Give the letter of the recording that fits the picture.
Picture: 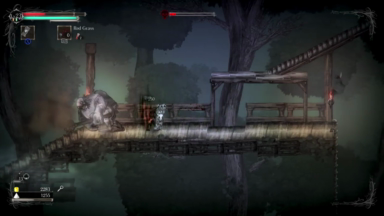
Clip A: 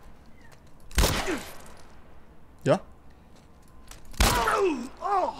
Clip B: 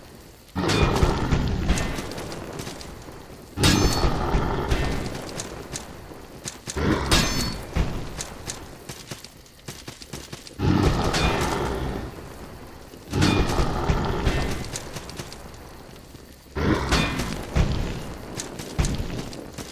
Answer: B